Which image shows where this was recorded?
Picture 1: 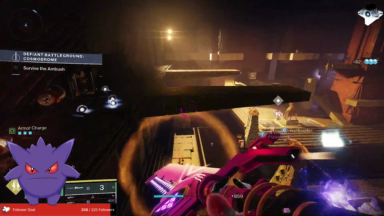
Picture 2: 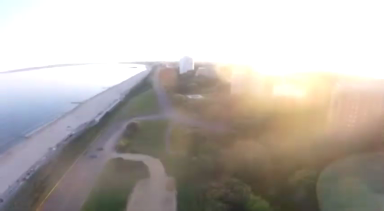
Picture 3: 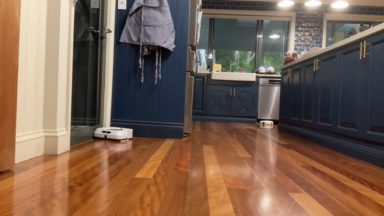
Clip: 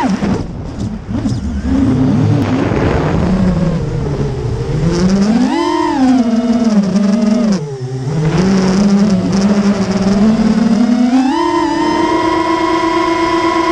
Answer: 2